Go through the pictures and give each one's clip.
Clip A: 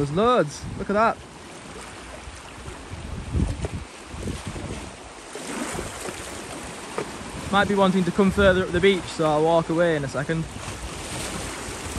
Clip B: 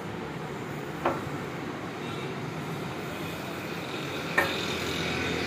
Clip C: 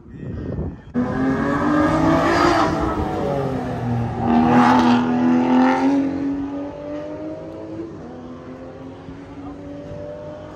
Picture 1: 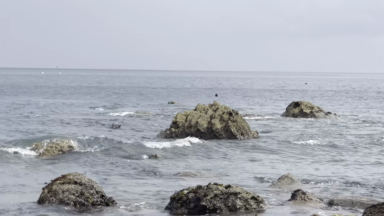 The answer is A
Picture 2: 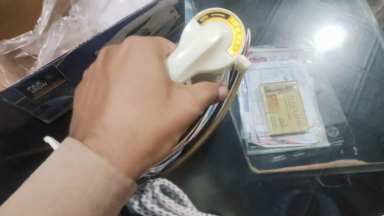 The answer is B